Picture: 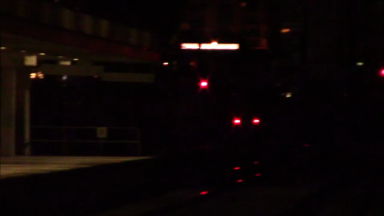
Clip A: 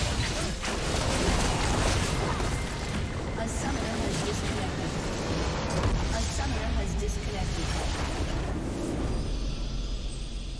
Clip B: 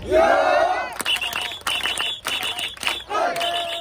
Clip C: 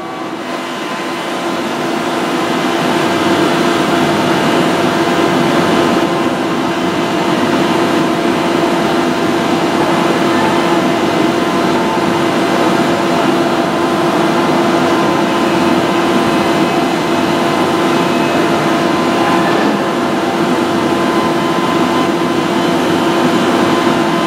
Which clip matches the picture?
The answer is C